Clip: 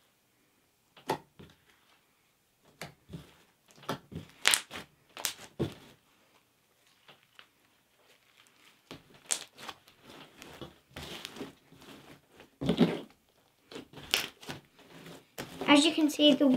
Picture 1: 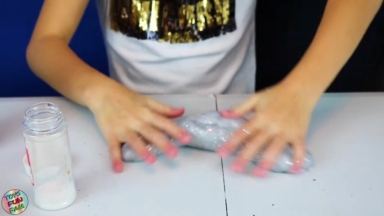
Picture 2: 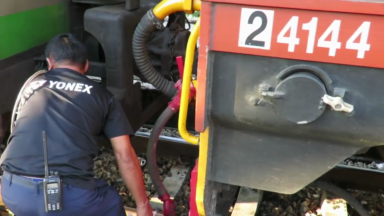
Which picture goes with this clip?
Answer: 1